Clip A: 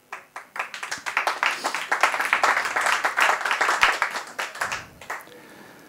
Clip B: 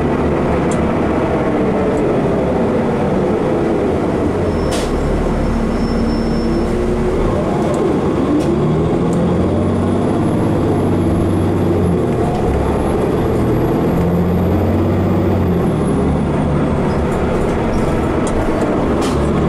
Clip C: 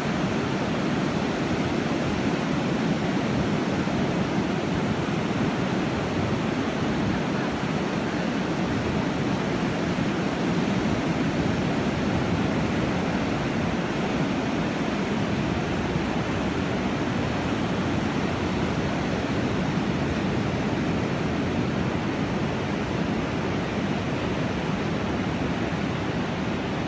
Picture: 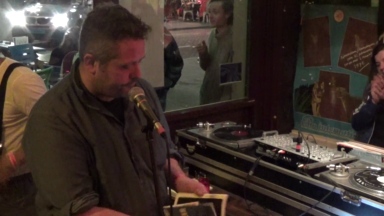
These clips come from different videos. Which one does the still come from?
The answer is A